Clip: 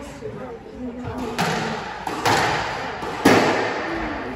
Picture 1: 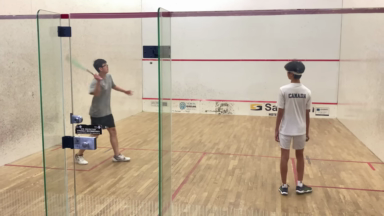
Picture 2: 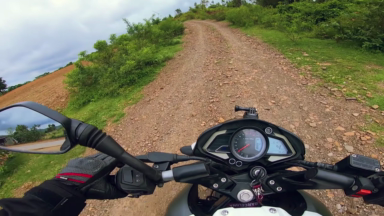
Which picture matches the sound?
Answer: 1